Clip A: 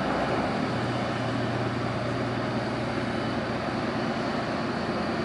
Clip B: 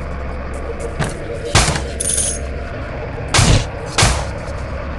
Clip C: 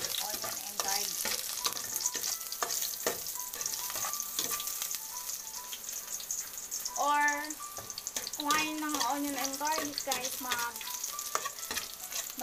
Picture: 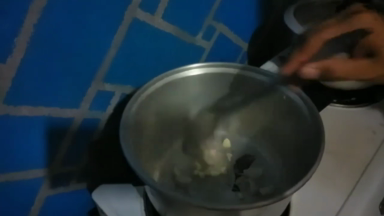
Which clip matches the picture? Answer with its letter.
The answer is C